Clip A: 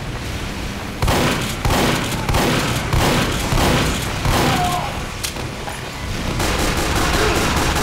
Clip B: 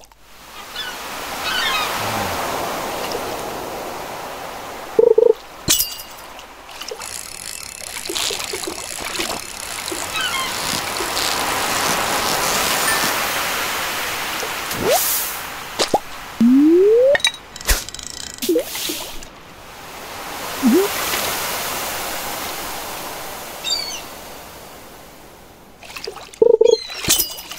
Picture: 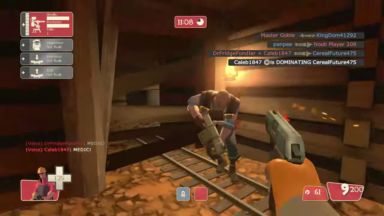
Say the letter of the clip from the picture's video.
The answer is A